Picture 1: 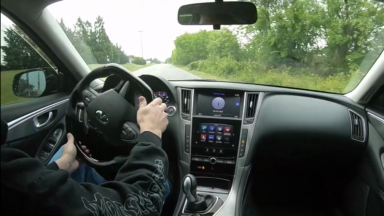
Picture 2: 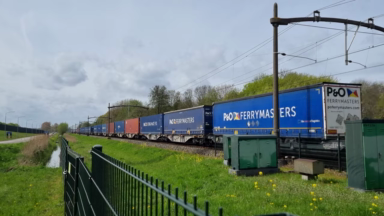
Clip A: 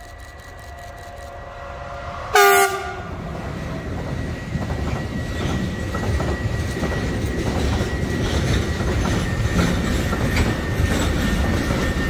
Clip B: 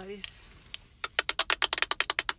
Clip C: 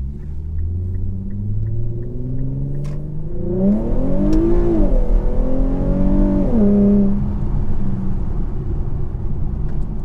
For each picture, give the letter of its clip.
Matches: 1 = C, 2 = A